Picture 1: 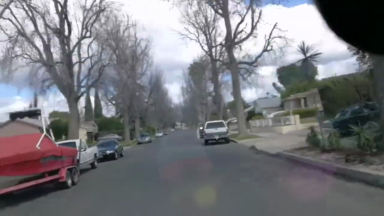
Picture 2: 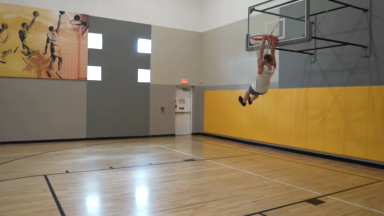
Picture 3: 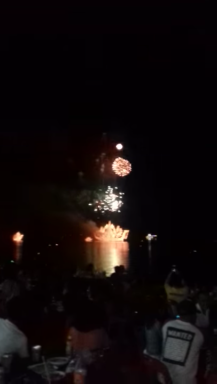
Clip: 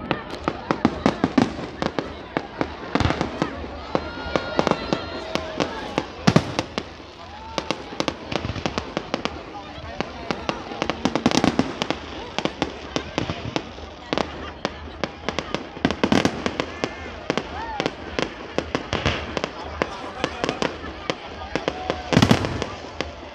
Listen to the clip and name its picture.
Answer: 3